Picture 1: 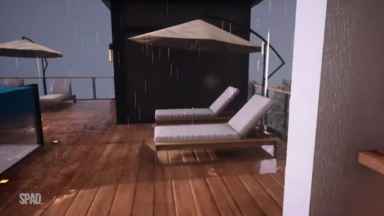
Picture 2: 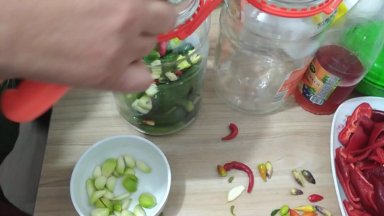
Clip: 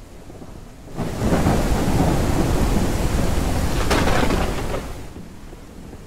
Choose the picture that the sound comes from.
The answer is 1